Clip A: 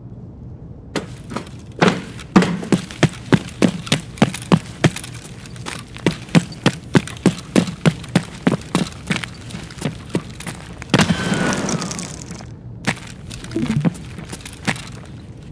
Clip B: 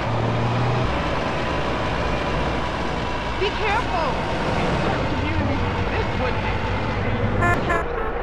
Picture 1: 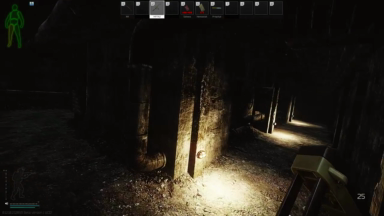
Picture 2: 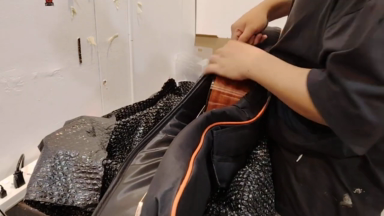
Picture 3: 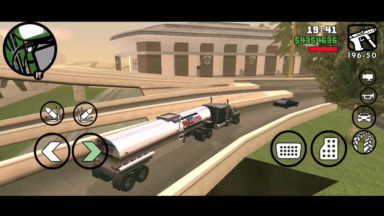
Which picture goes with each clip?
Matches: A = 1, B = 3